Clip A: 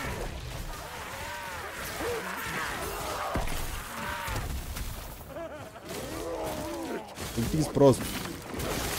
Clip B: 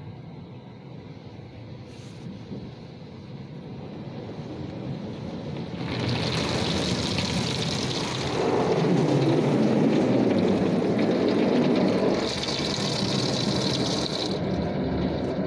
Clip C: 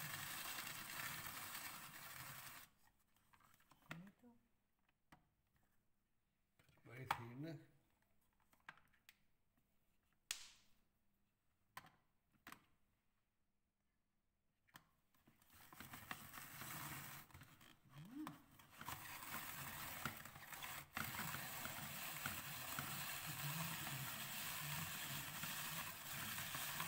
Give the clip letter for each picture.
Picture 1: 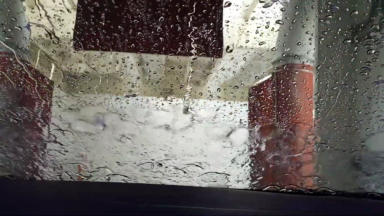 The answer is B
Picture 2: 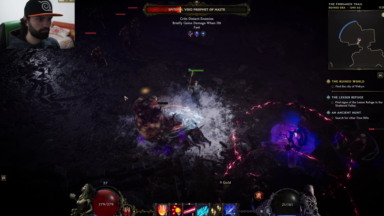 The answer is A